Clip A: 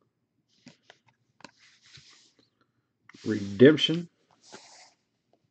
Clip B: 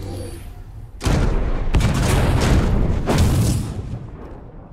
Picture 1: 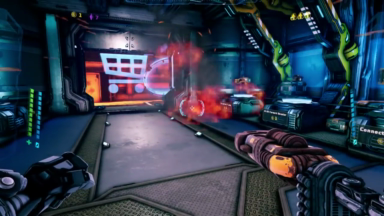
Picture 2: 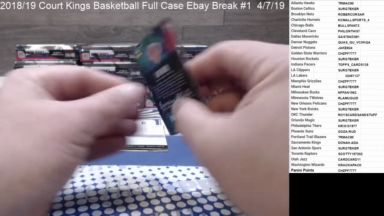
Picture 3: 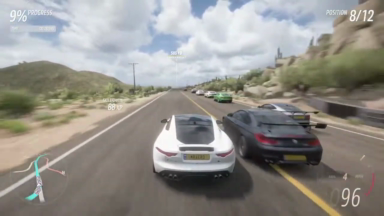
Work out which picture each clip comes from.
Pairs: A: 2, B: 1